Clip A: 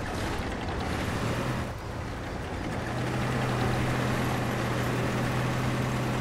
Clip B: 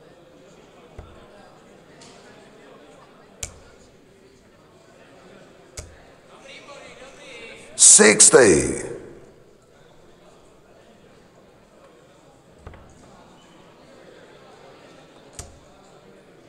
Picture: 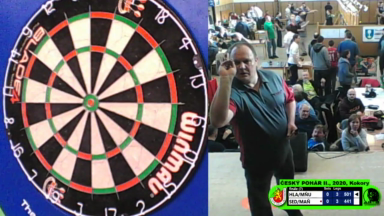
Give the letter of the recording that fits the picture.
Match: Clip B